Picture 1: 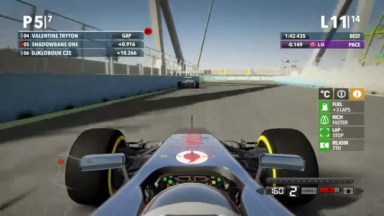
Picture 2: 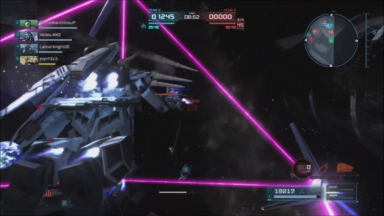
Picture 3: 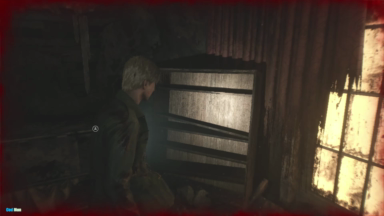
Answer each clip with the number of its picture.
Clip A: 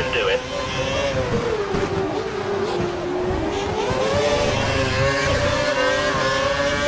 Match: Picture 1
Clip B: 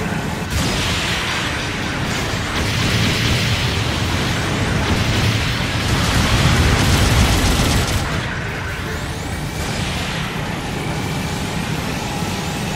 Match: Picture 2